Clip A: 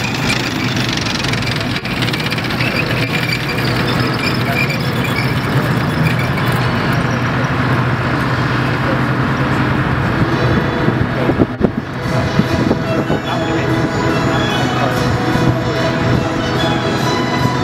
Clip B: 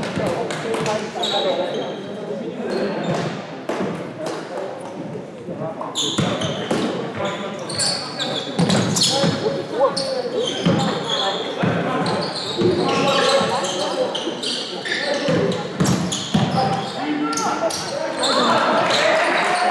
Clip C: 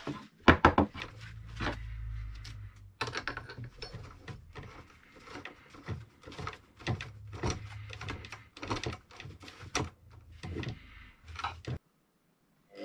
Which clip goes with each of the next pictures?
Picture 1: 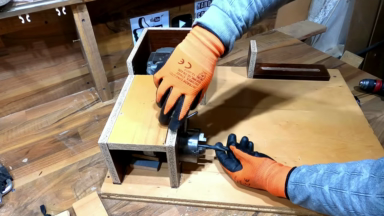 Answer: C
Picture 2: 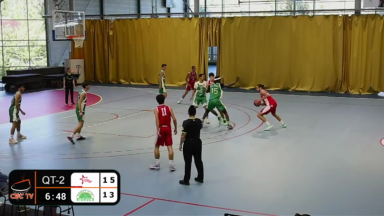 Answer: B